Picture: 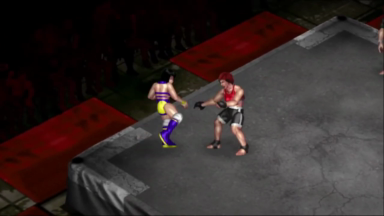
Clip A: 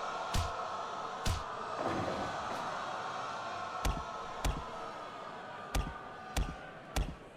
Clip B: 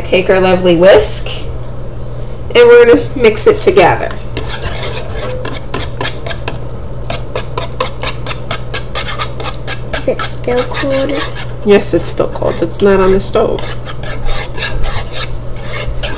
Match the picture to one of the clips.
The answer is A